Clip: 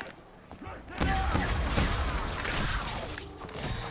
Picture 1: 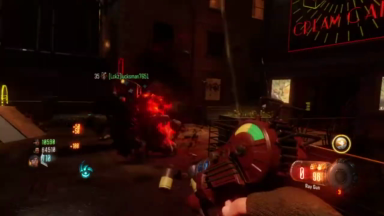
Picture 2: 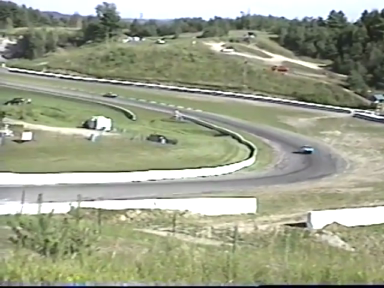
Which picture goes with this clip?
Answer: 1